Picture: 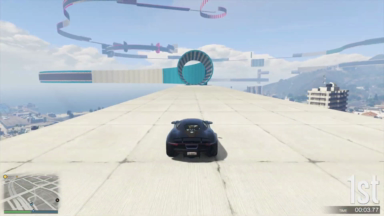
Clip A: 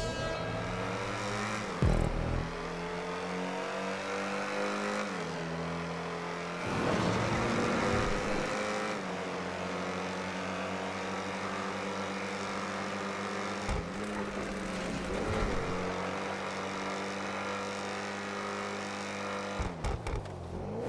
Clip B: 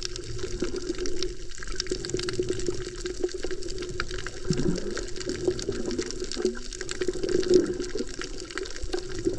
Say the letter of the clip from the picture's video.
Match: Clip A